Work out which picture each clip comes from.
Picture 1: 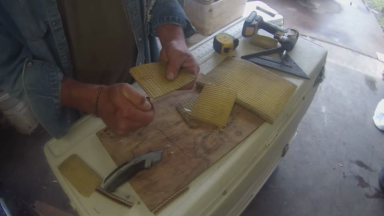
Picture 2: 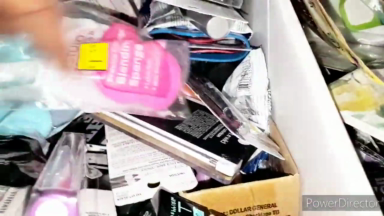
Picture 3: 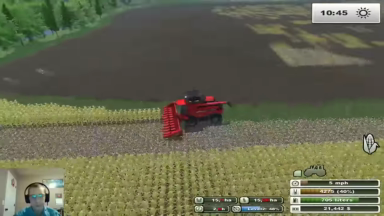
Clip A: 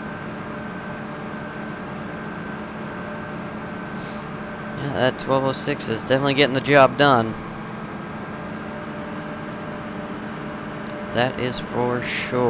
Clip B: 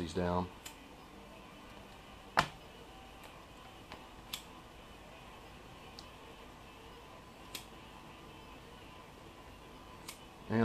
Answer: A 3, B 1